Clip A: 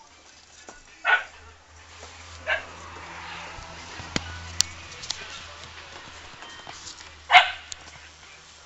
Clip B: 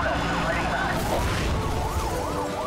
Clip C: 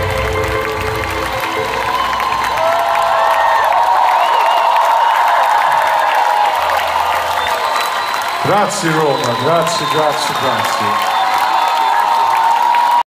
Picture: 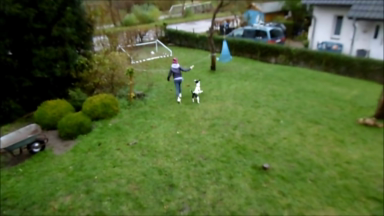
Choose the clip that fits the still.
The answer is A